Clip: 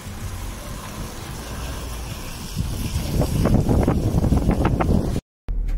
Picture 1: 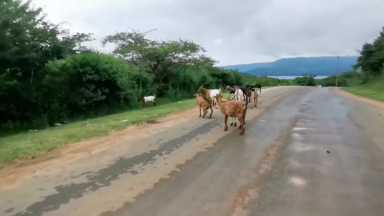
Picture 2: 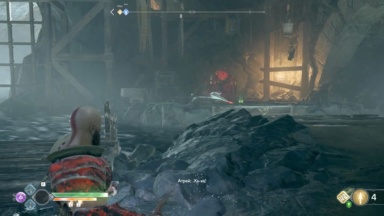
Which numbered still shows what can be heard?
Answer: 1